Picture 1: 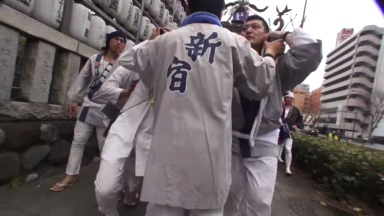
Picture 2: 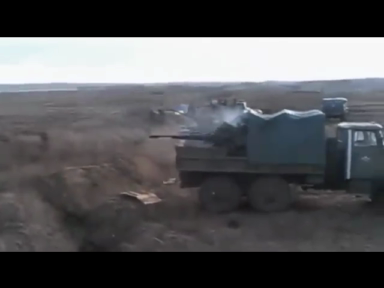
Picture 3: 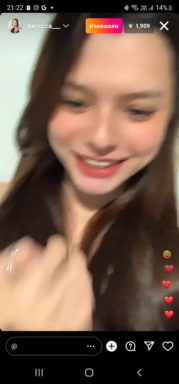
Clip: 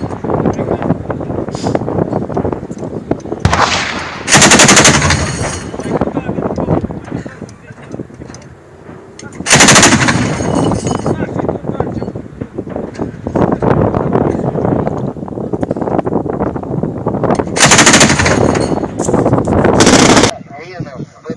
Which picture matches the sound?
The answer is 2